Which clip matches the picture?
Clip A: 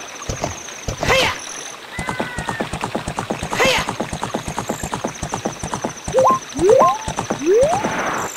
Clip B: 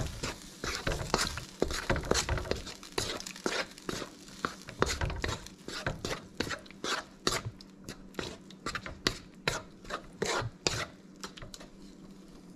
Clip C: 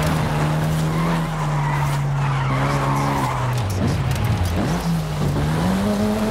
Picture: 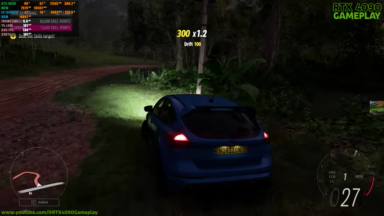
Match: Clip C